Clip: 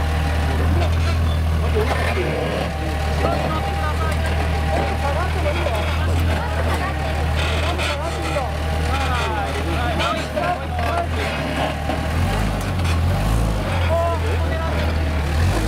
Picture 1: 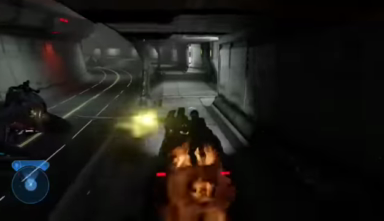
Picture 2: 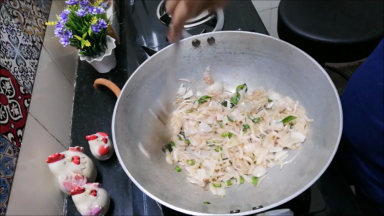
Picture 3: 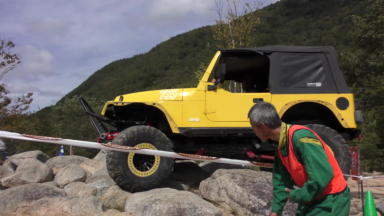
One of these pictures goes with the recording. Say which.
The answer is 3